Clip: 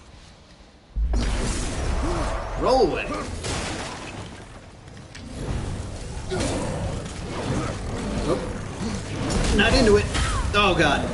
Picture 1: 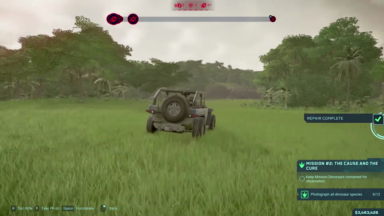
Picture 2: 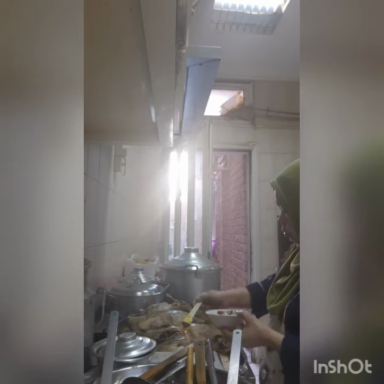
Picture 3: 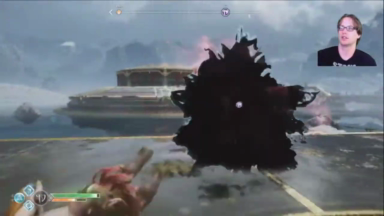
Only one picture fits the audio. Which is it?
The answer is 3